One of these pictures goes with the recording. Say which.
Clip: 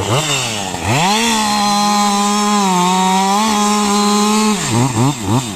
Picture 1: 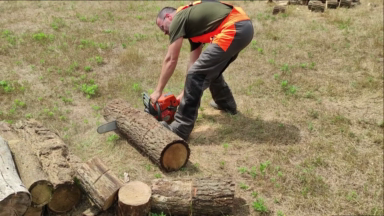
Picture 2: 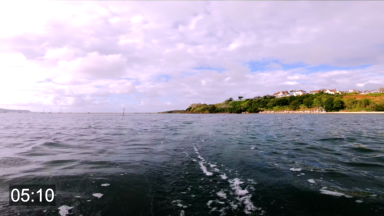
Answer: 1